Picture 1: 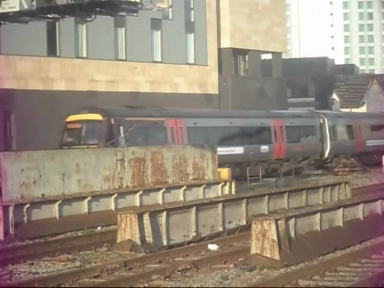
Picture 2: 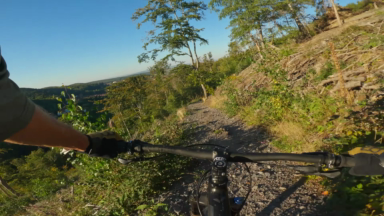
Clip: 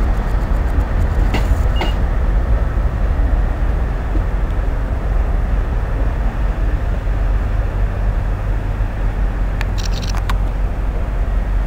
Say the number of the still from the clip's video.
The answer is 1